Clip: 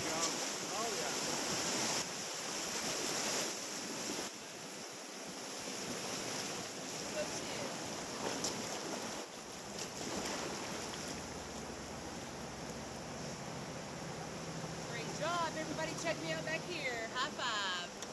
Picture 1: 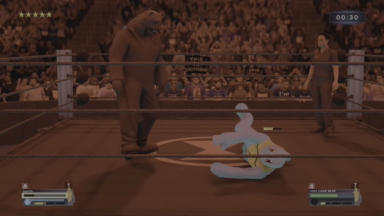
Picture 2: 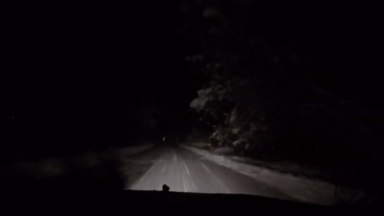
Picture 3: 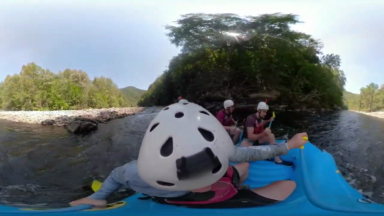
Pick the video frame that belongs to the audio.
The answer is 3